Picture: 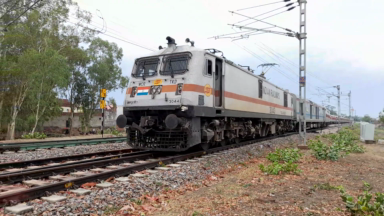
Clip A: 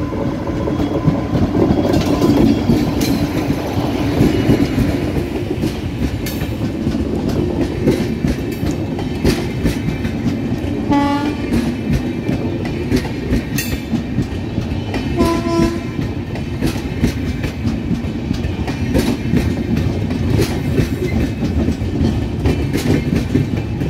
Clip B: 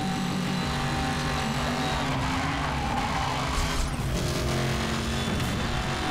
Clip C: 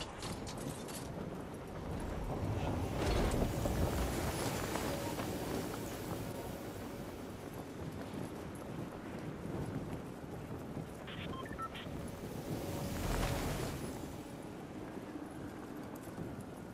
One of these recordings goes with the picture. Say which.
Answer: A